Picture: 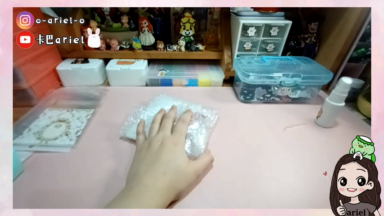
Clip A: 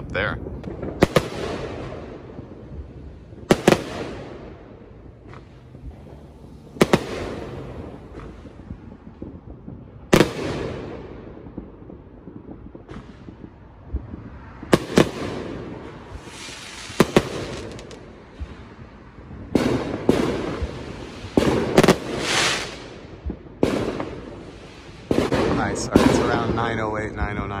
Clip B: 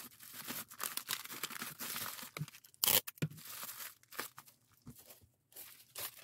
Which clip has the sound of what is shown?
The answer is B